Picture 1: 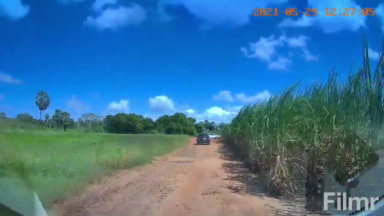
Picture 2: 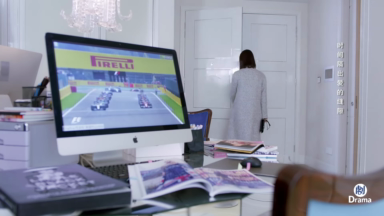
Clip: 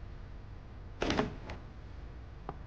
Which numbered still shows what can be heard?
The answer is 2